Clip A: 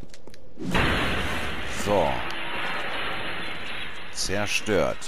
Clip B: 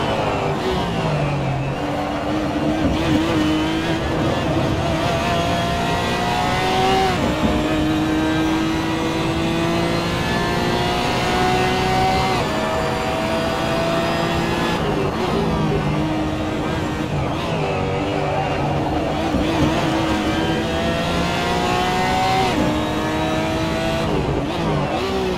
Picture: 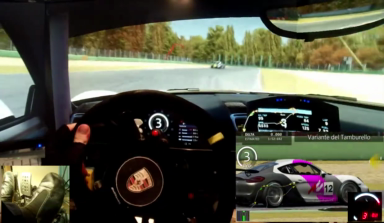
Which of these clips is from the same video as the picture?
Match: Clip B